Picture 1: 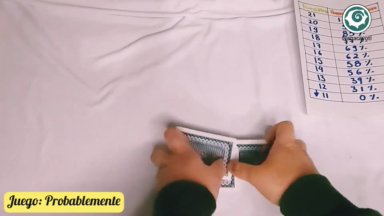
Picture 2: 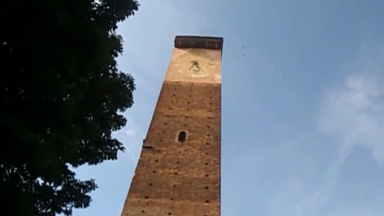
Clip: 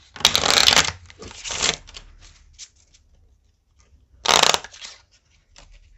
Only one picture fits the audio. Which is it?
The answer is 1